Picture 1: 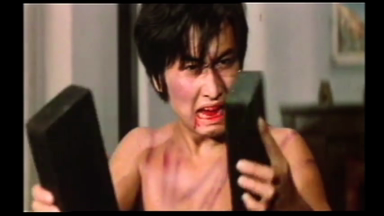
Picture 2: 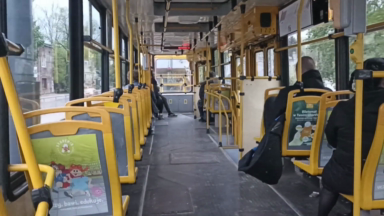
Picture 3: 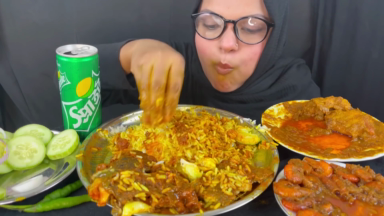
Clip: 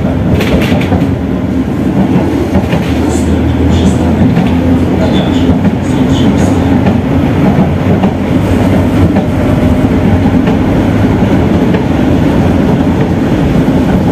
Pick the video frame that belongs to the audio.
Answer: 2